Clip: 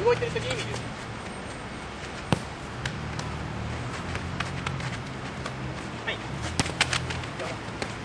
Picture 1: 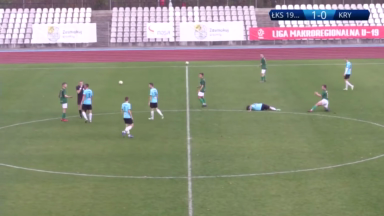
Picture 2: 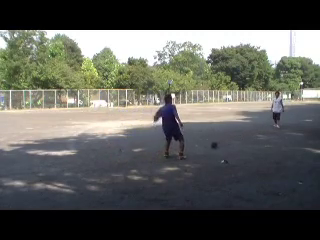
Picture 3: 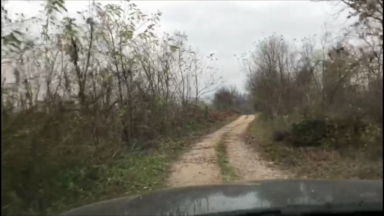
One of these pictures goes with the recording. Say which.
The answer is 2